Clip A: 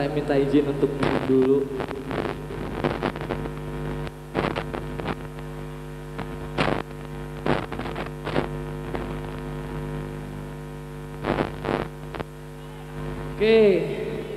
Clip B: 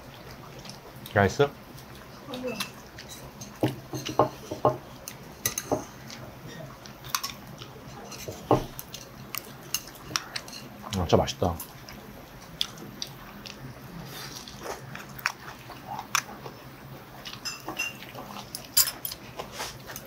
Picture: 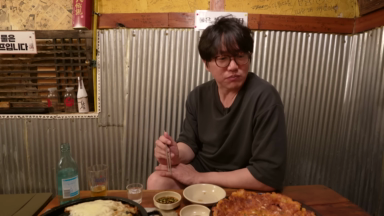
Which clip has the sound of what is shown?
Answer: B